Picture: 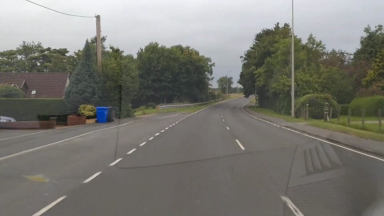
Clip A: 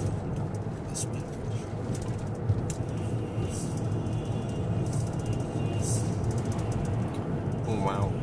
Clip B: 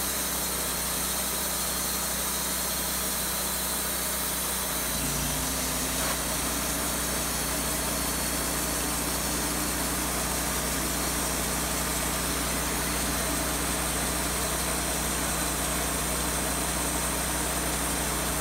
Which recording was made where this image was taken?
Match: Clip A